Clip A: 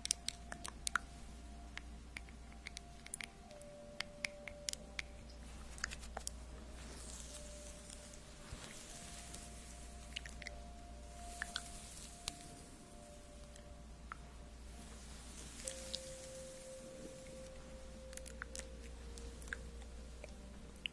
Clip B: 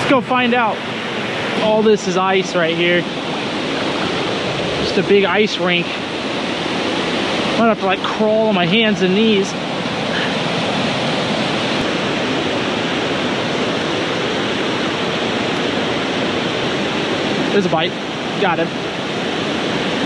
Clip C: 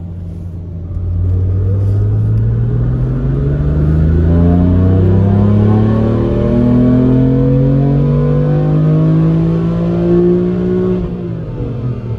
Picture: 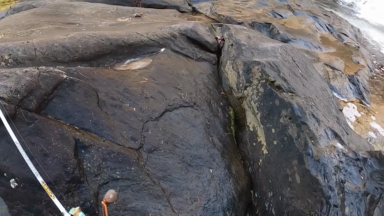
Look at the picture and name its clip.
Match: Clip B